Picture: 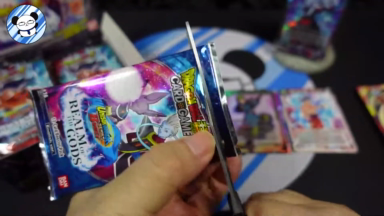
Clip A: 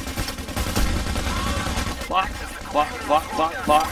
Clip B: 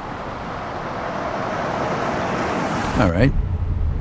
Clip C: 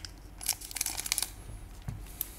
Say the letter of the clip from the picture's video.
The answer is C